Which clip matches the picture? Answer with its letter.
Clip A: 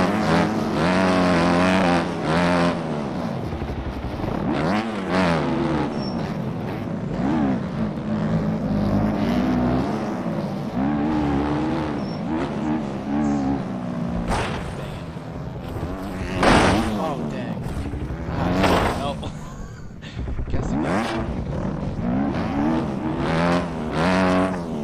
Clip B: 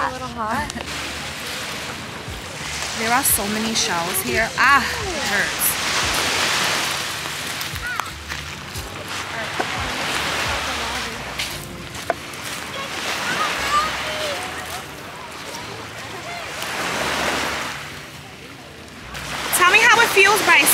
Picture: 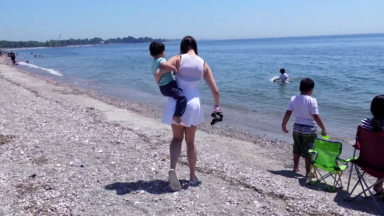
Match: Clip B